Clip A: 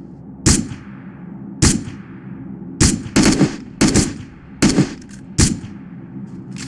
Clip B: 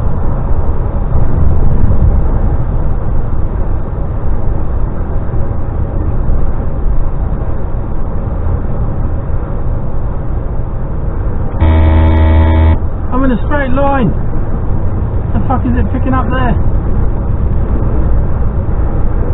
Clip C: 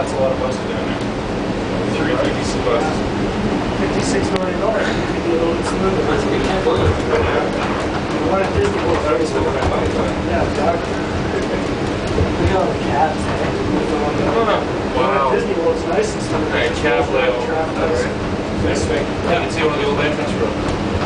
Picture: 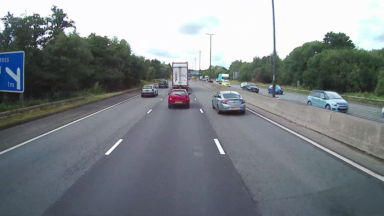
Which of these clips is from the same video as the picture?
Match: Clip B